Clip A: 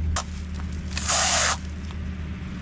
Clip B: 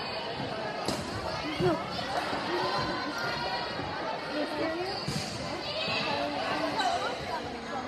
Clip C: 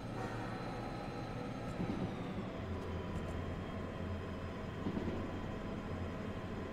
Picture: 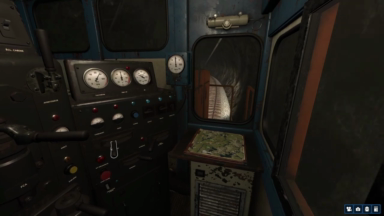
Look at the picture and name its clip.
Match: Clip C